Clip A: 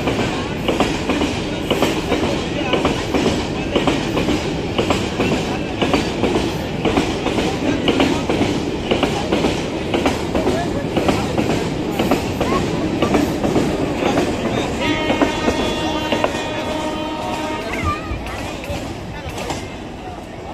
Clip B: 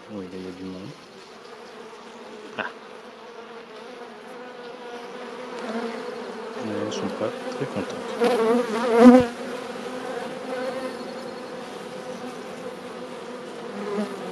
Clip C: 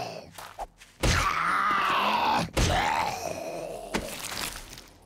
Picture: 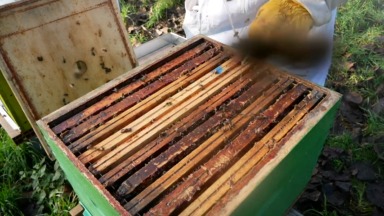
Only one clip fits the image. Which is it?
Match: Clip B